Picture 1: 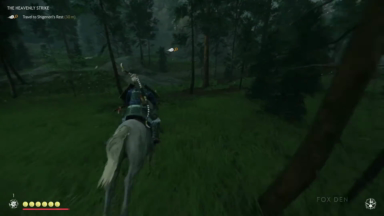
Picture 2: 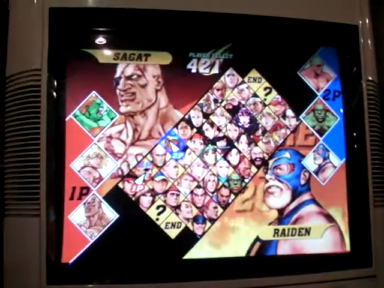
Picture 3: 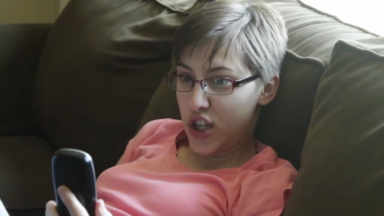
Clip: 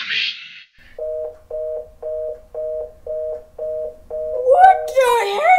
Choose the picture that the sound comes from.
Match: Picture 3